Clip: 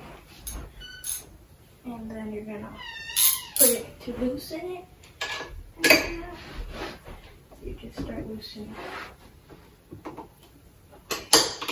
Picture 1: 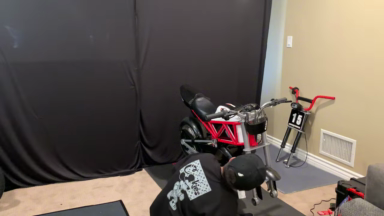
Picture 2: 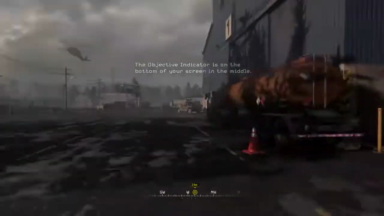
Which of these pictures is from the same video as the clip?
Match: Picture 1